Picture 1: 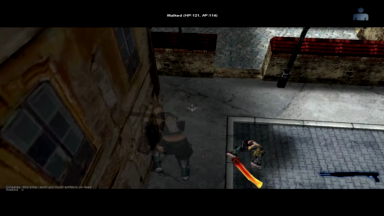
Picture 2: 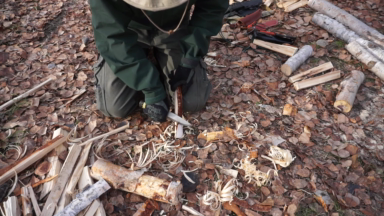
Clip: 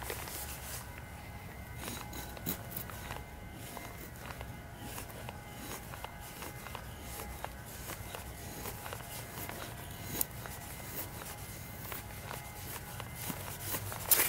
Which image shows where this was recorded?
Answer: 2